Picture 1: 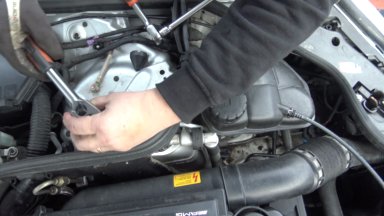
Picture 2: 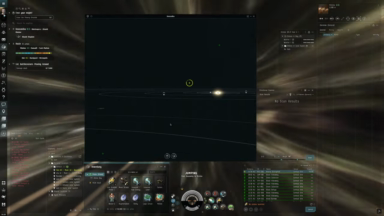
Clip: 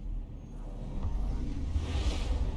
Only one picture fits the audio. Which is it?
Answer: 2